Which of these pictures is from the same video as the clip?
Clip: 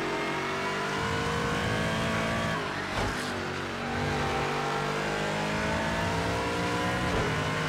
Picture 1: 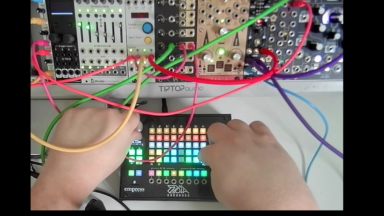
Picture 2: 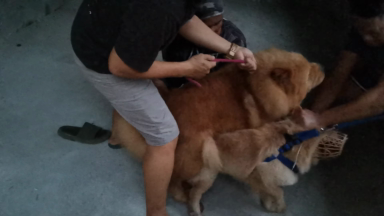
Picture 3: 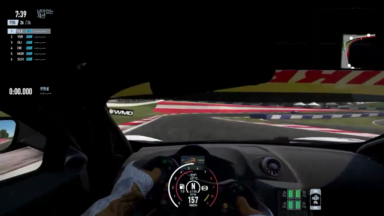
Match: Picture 3